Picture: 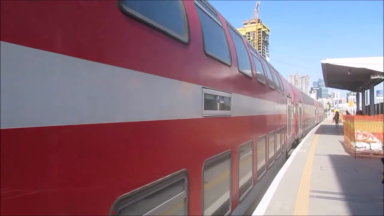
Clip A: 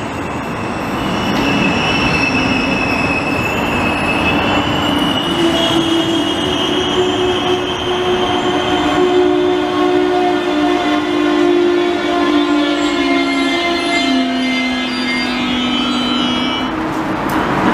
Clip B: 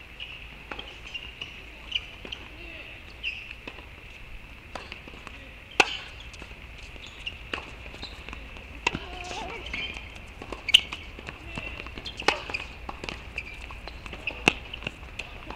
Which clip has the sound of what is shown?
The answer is A